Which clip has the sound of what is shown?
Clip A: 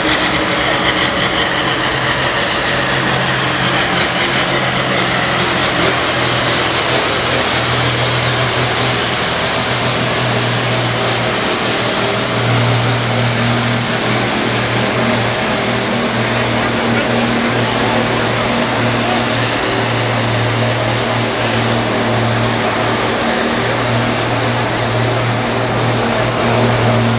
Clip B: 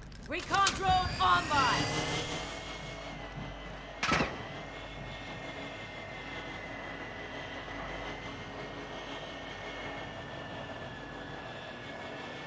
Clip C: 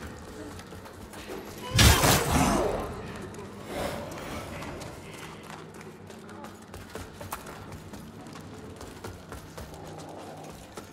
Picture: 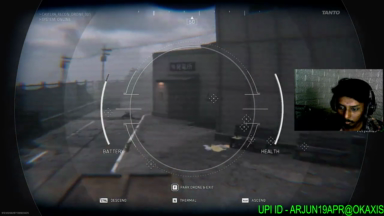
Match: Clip B